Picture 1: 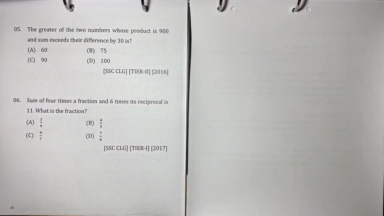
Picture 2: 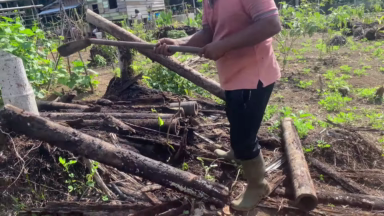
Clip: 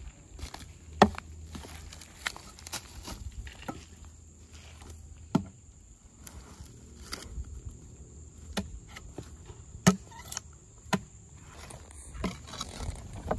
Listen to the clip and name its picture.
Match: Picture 2